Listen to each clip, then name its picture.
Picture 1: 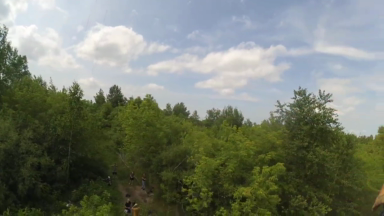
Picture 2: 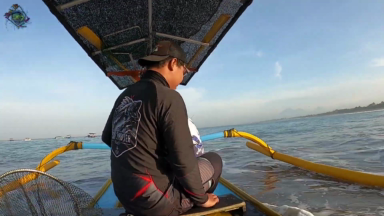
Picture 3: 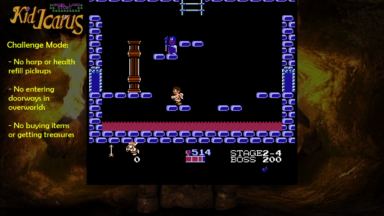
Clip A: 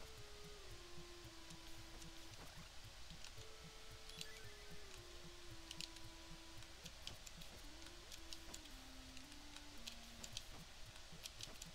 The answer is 3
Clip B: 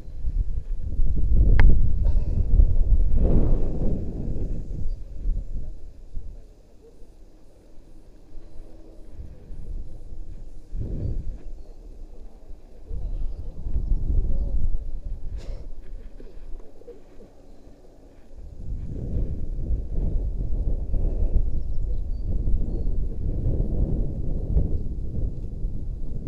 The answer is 1